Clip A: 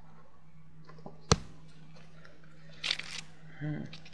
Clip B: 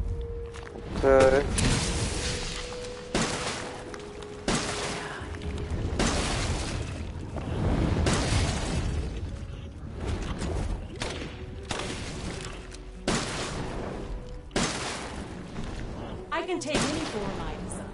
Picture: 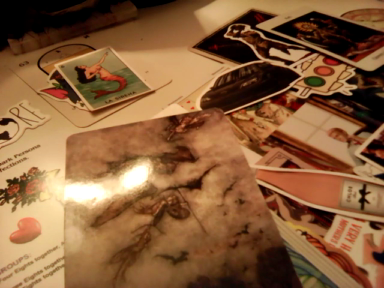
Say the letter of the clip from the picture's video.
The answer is A